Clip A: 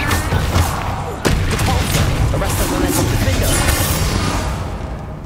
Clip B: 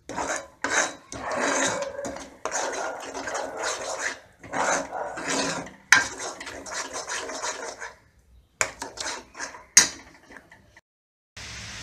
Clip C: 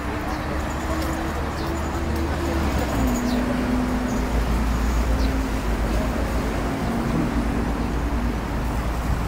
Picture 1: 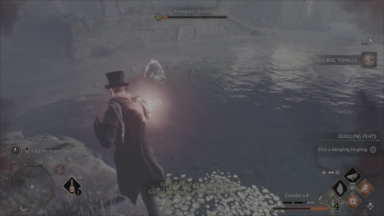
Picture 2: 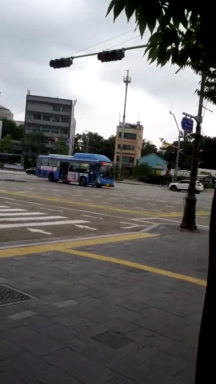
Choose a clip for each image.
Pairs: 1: A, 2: C